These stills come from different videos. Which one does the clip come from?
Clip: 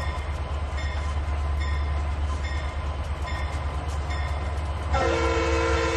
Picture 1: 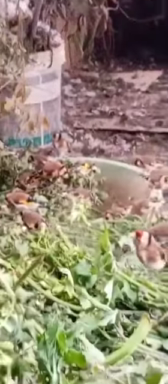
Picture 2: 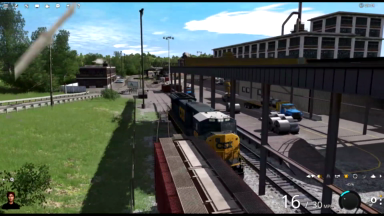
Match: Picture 2